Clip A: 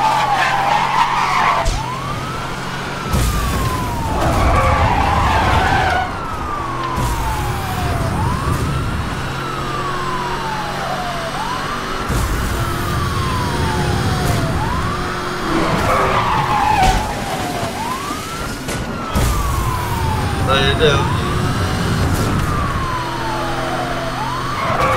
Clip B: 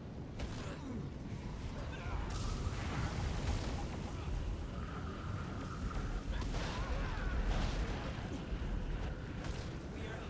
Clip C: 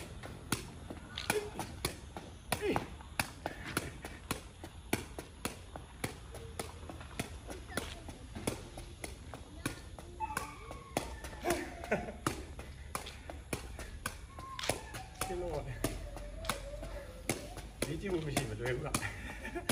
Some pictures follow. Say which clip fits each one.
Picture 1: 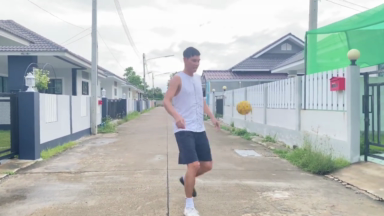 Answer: C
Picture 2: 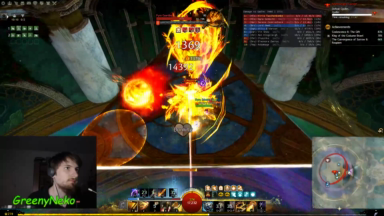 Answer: B